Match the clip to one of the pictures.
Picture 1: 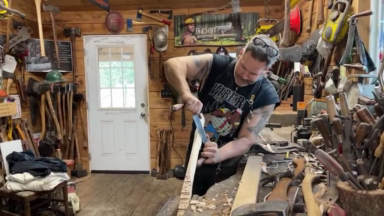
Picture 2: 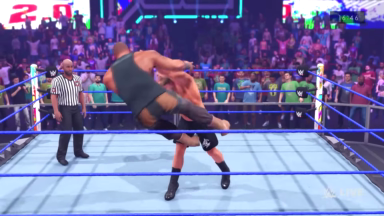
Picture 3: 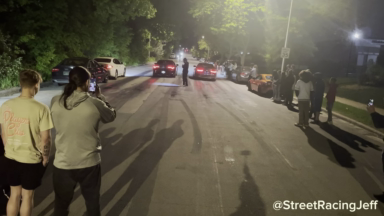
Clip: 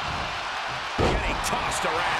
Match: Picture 2